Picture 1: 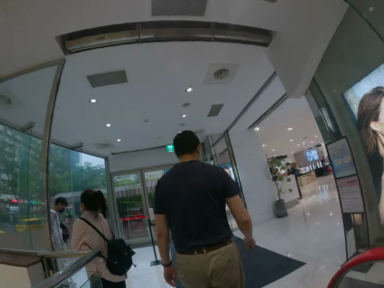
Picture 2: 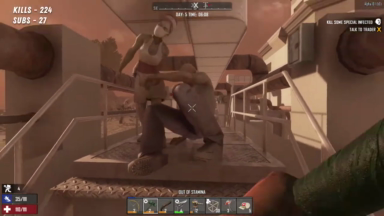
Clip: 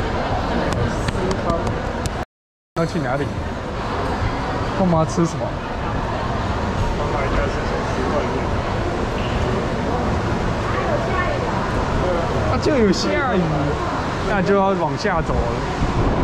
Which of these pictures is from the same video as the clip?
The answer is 1